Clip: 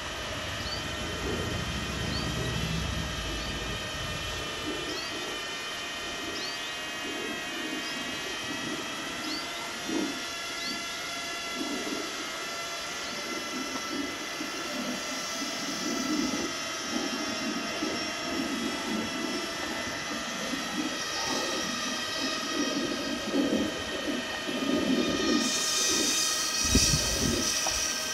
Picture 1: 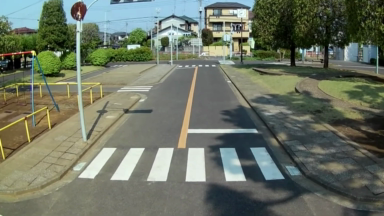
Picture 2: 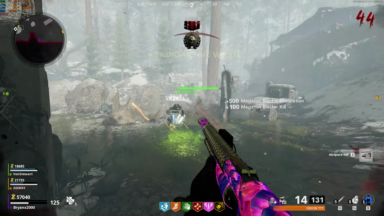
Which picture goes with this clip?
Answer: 1